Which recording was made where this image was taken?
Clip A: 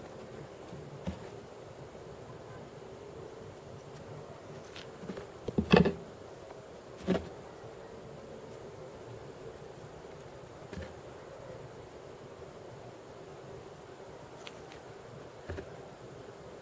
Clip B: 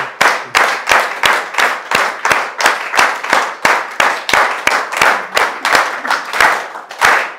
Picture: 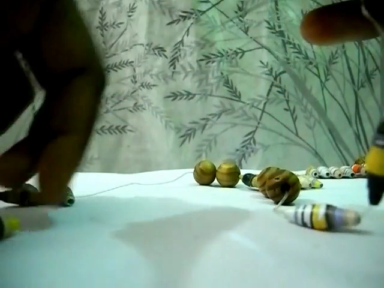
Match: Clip A